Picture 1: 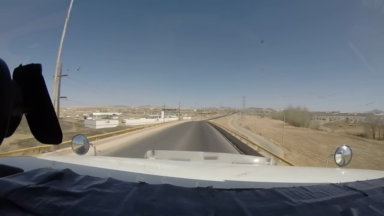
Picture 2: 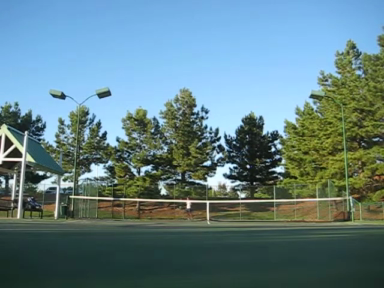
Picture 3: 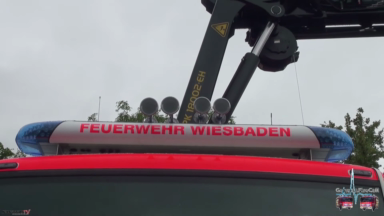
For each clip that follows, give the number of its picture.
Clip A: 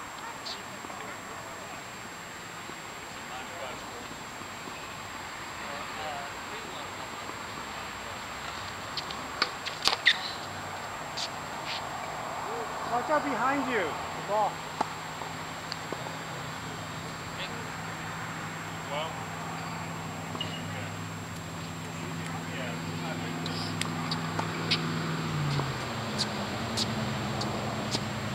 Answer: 2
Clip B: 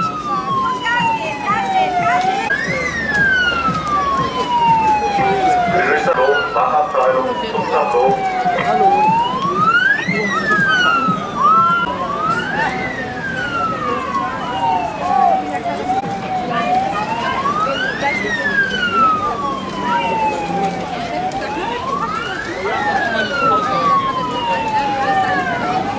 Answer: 3